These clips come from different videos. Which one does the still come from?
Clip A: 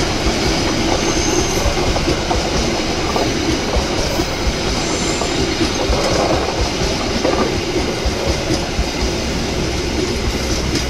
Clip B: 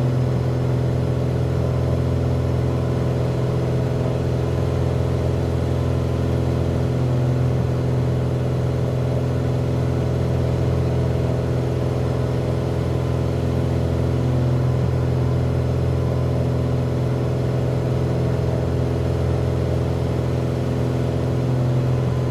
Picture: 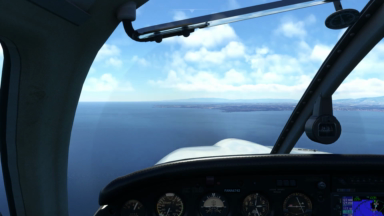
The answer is B